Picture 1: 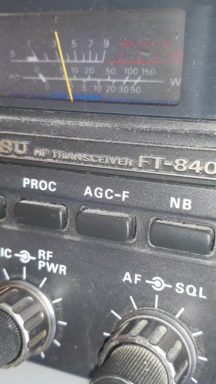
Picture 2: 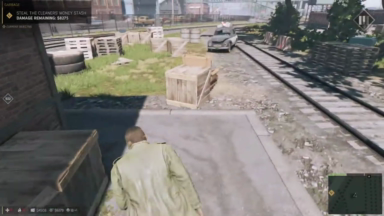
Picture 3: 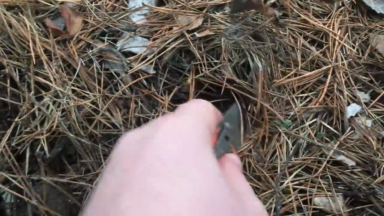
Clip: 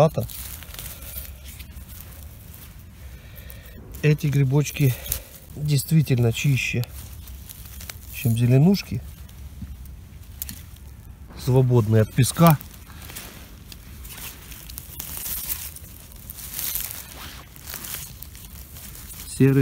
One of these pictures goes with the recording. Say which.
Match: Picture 3